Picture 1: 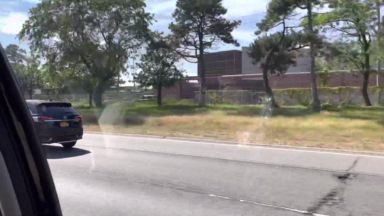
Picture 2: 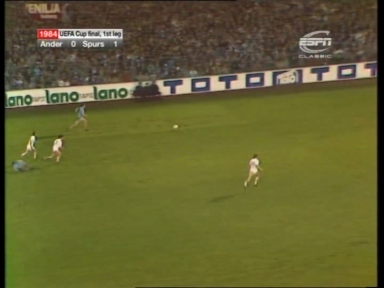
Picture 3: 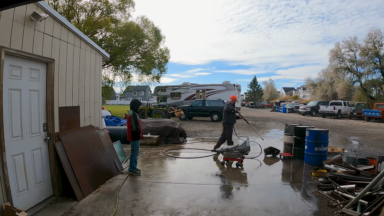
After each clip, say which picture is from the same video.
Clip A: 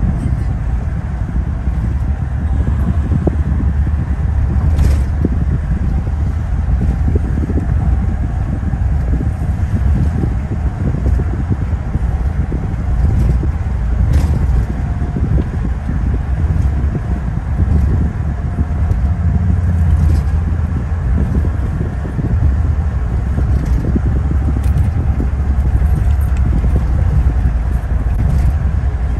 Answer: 1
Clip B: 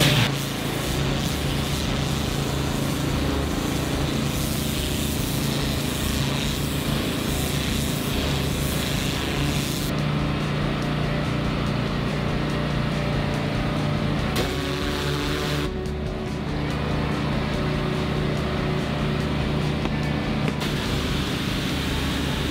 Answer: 3